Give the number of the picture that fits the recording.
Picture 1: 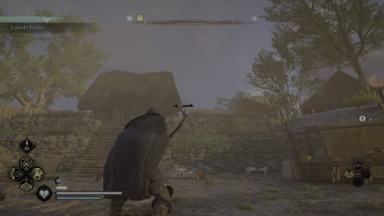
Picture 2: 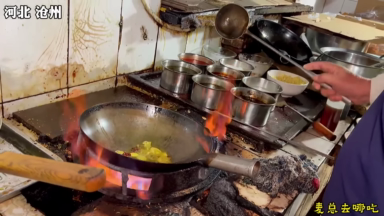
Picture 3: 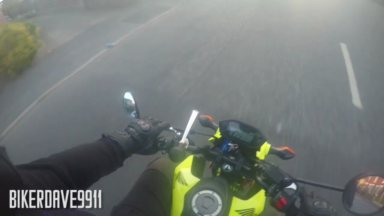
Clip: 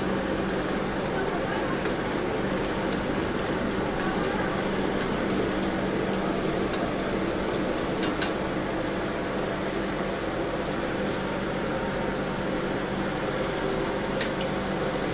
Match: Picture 2